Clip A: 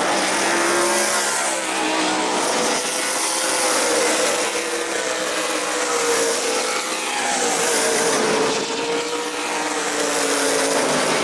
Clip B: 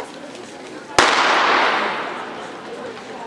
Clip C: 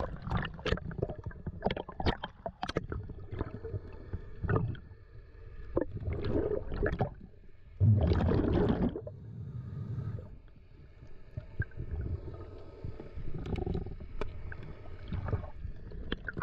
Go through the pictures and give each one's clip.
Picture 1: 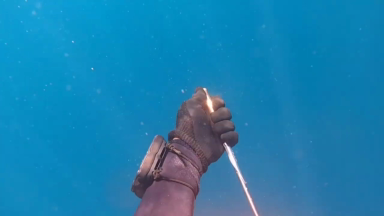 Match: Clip C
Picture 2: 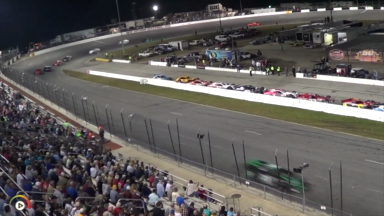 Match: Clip A